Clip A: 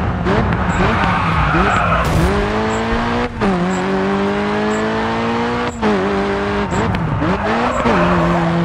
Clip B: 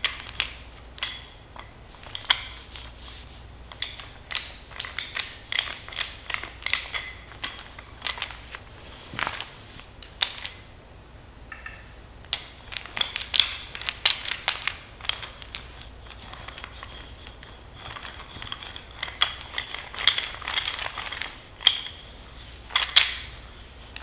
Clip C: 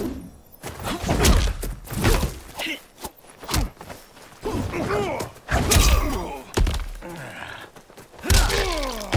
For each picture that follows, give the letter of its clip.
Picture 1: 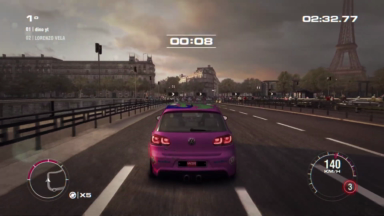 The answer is A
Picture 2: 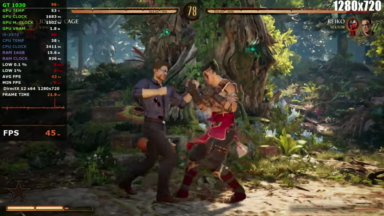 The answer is C